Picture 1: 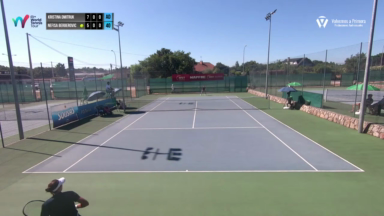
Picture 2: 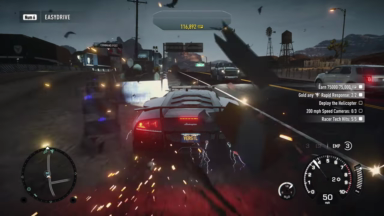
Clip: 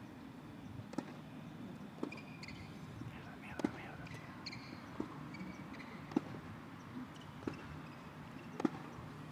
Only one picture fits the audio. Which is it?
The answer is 1